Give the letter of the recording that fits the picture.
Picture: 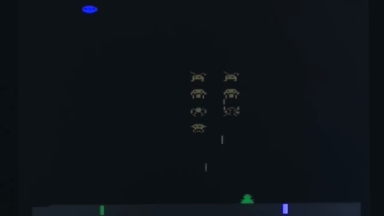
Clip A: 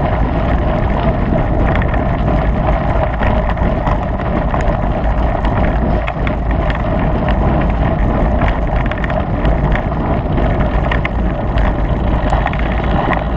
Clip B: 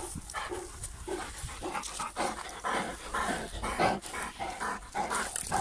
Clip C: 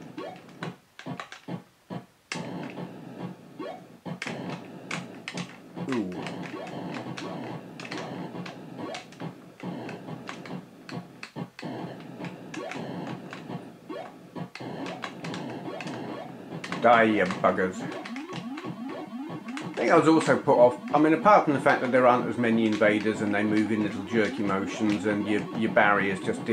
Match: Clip C